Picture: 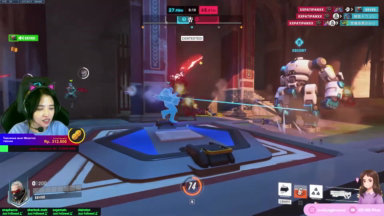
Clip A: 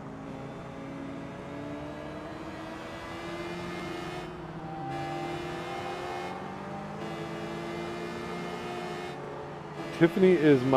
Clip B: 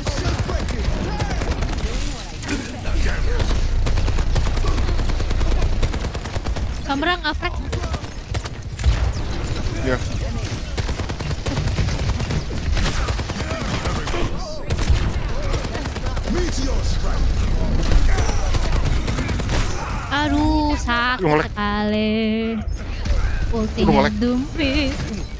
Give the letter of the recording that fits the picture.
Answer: B